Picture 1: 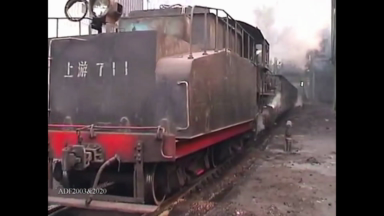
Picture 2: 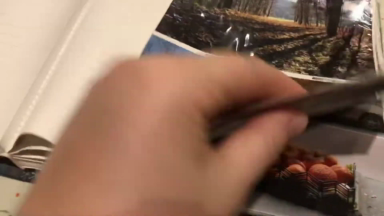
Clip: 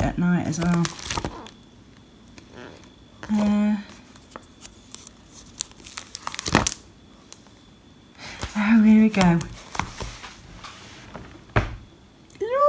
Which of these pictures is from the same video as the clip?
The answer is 2